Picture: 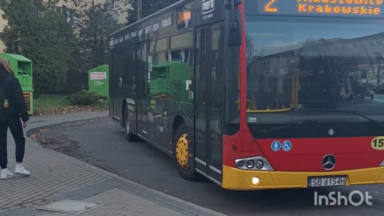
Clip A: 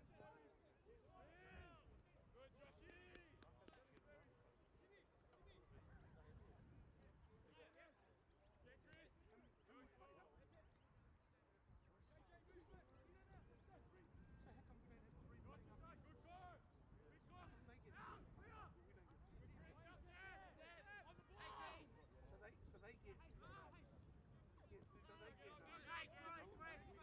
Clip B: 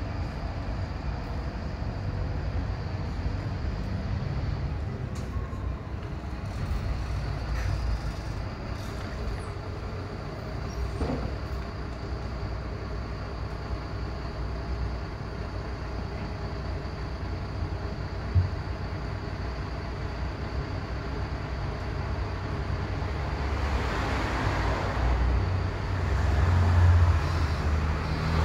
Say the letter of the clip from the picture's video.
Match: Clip B